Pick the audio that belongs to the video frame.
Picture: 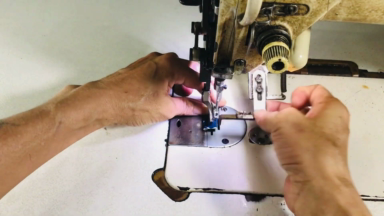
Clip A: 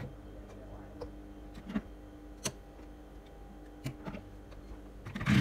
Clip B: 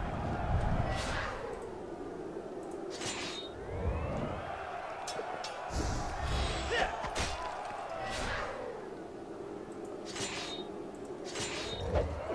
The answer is A